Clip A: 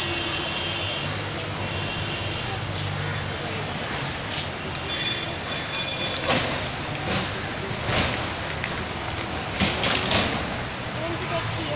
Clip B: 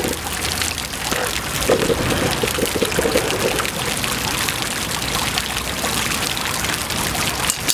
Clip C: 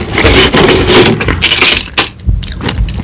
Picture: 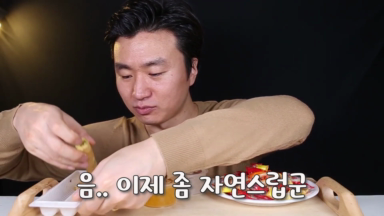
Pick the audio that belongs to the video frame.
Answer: C